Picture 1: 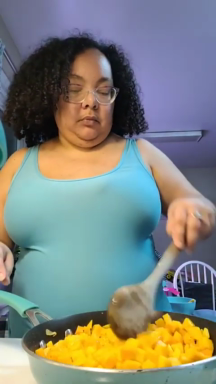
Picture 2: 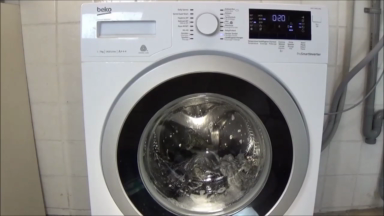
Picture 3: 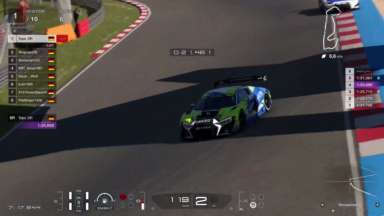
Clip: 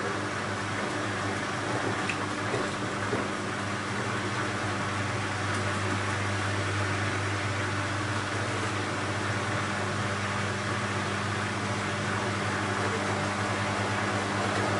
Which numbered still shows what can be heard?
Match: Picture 2